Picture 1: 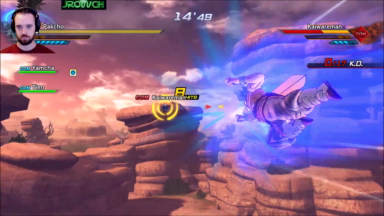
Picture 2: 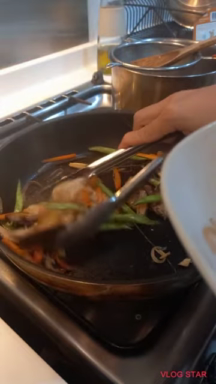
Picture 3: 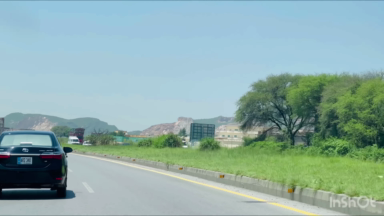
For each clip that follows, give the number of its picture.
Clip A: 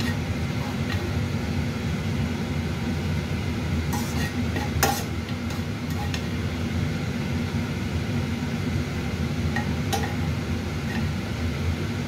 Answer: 2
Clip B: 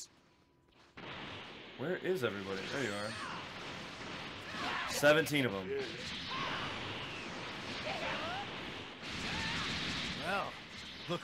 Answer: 1